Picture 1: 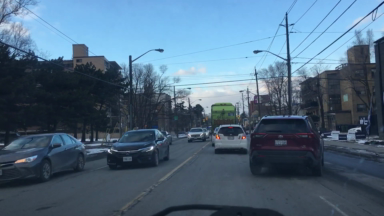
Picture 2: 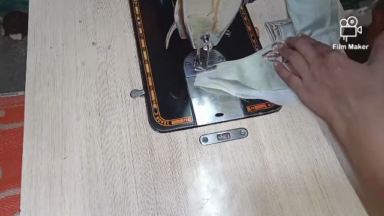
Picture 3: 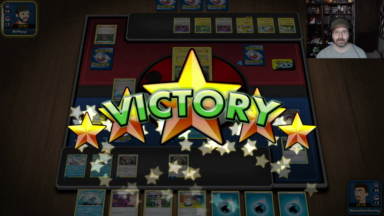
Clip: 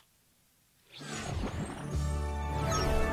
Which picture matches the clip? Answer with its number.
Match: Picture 3